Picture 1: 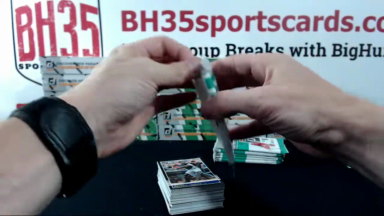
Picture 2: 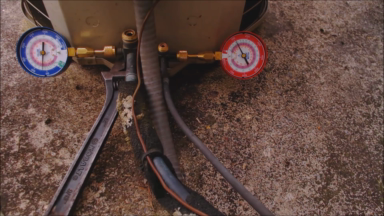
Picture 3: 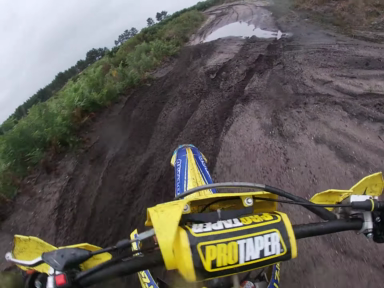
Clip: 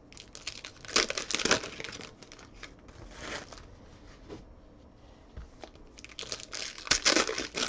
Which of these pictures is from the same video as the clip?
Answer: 1